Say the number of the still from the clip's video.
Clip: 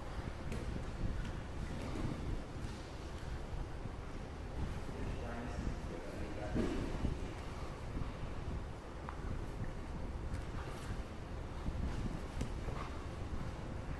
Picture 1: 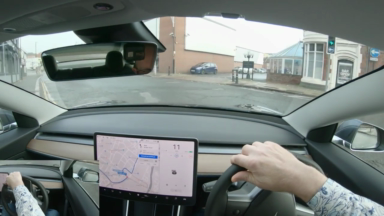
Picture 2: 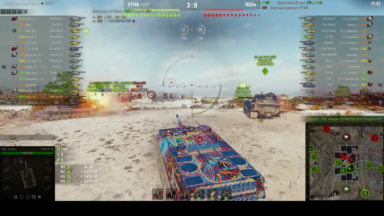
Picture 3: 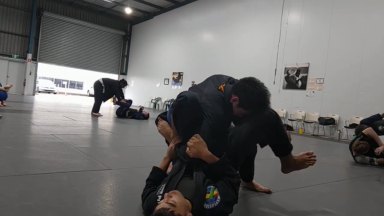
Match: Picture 3